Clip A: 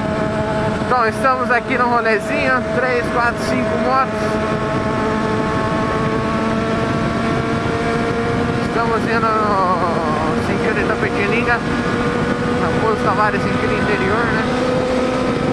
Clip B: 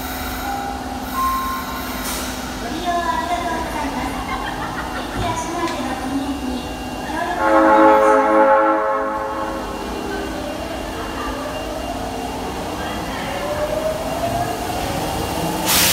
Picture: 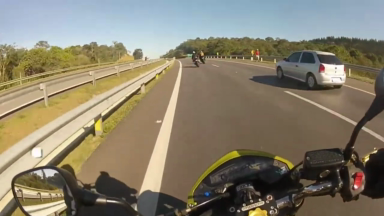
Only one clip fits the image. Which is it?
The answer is A